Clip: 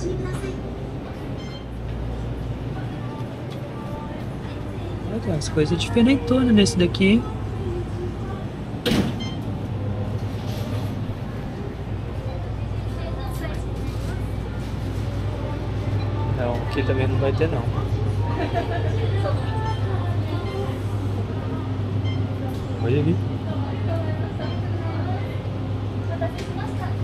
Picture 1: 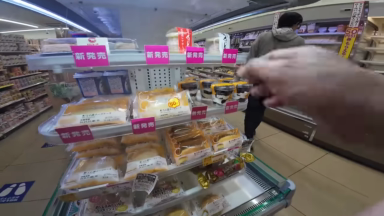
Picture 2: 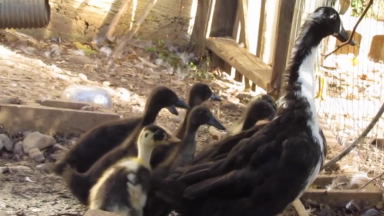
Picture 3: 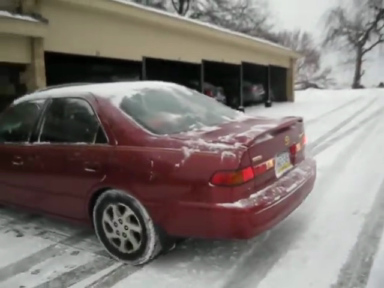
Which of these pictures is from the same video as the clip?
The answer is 1